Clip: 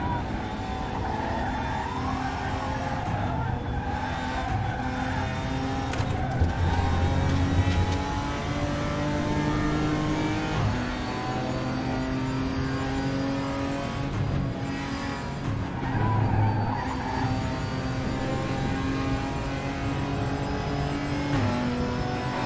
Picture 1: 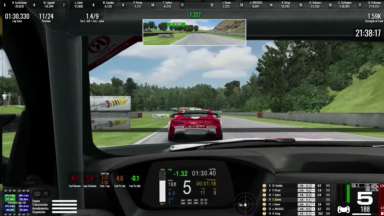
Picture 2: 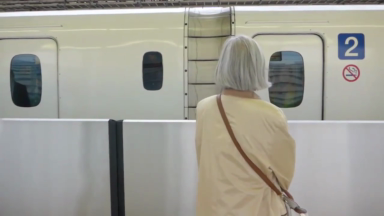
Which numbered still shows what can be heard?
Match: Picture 1